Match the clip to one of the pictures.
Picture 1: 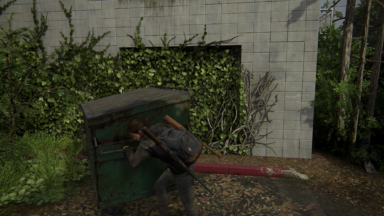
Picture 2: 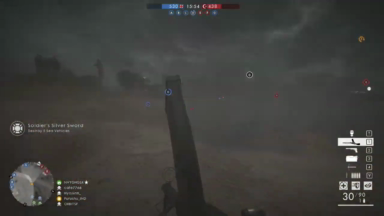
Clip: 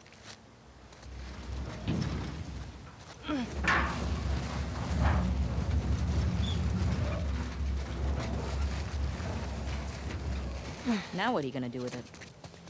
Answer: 1